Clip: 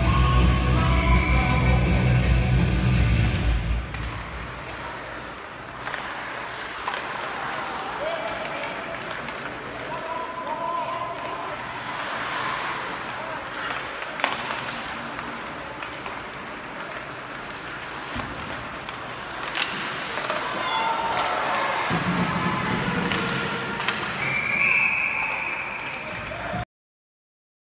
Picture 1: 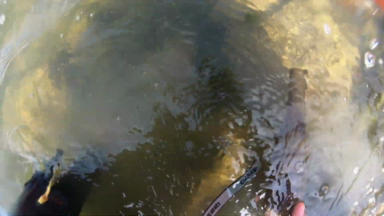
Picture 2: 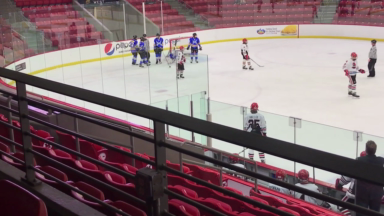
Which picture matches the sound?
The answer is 2